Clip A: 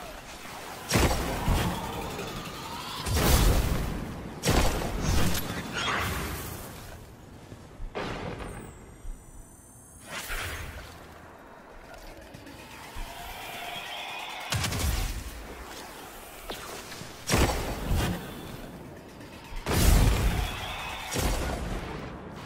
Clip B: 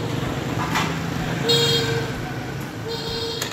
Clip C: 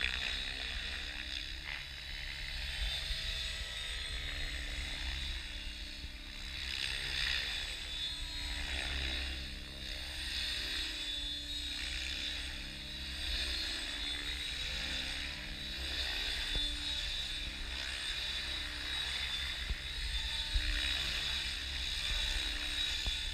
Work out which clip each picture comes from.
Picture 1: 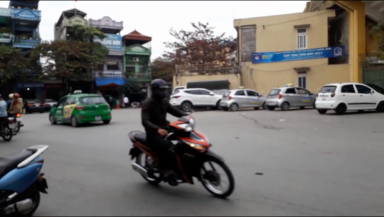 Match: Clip B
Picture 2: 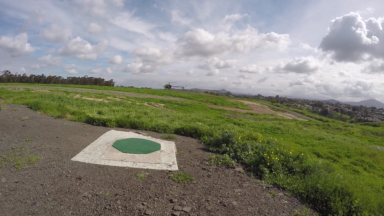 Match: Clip C